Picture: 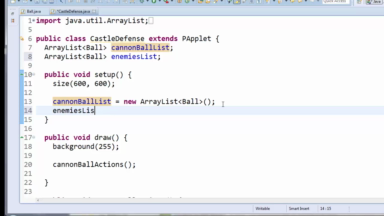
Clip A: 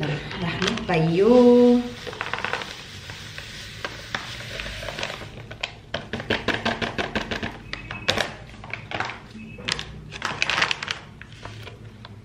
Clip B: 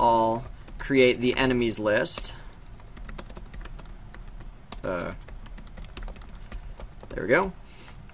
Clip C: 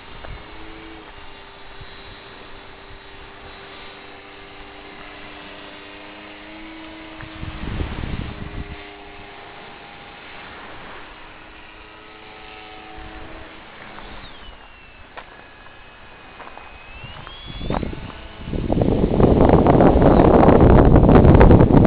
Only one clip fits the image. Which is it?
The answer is B